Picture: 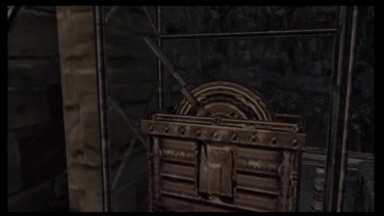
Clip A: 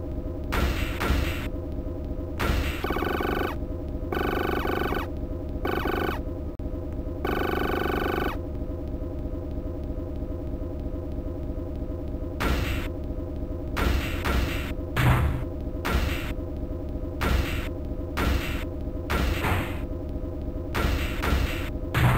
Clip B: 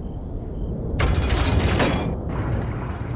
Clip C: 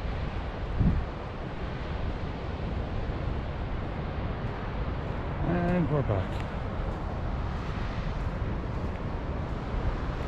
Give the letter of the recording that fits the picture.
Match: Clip B